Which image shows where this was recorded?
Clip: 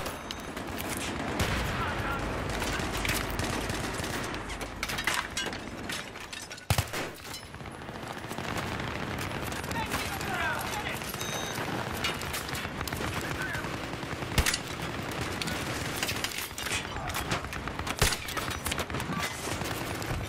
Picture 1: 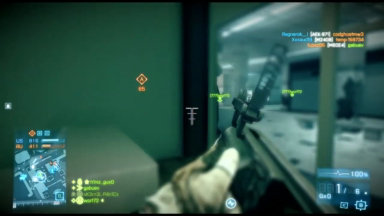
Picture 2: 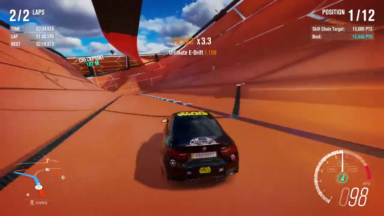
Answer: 1